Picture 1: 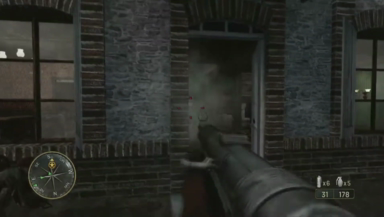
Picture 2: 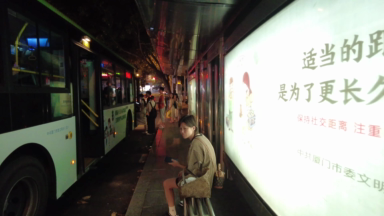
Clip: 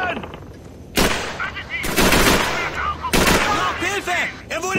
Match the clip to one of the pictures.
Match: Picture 1